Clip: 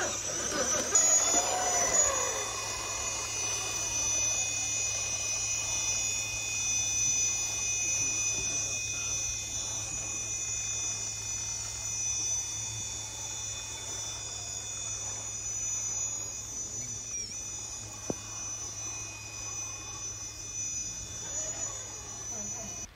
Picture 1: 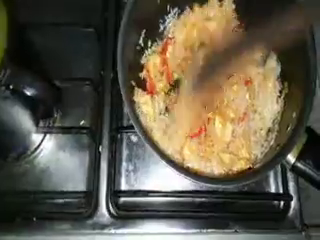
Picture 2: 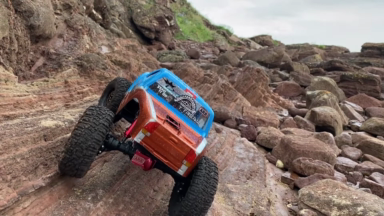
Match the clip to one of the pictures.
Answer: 2